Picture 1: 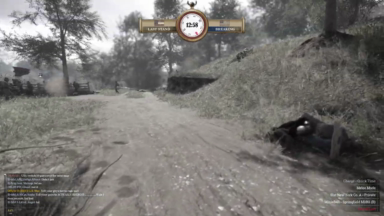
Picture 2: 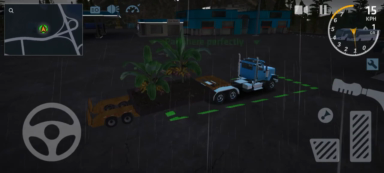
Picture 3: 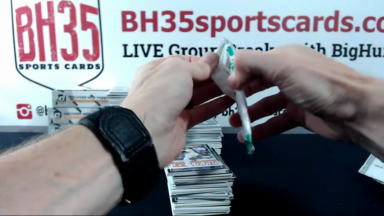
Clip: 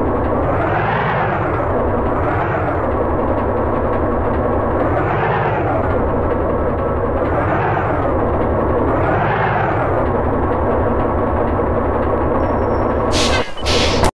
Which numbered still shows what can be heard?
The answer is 2